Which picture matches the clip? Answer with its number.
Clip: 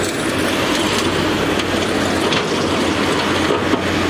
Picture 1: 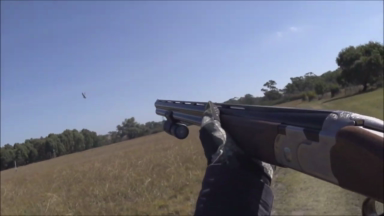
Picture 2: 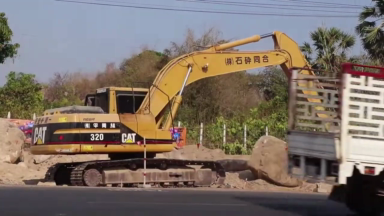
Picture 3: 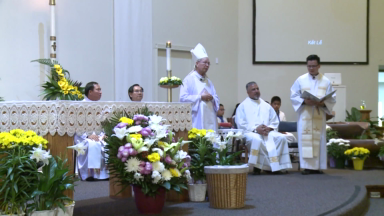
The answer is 2